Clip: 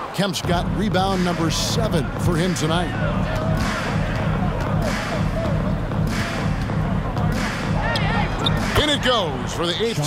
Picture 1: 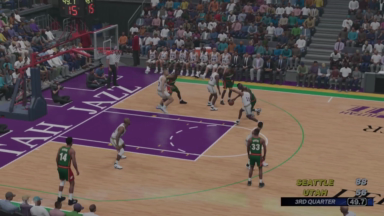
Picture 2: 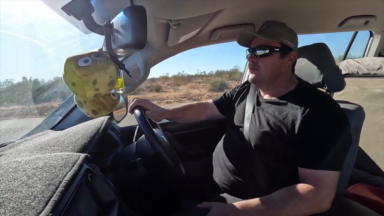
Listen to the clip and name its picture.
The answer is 1